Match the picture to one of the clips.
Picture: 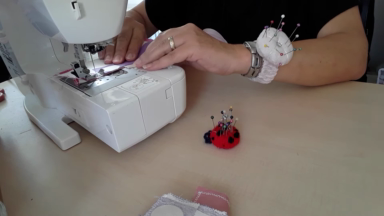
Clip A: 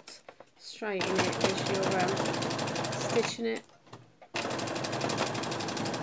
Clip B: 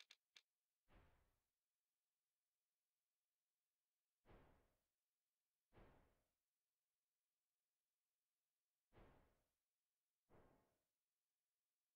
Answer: A